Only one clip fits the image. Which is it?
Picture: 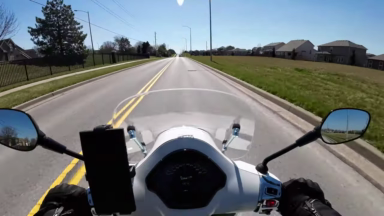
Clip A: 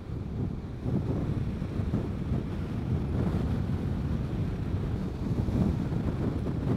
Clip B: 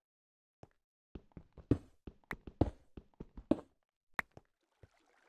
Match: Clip A